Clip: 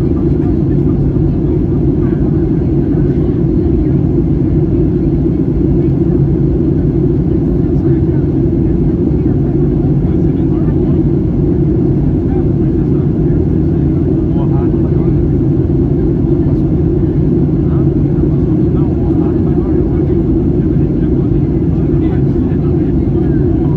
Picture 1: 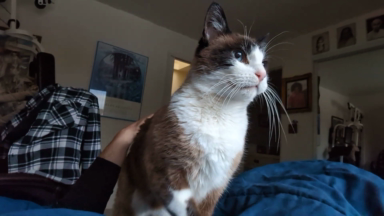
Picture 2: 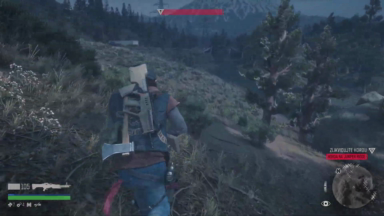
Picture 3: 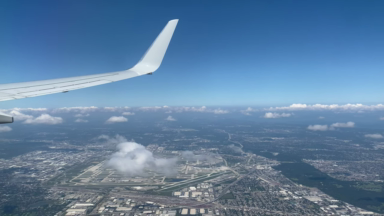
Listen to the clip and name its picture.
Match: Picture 3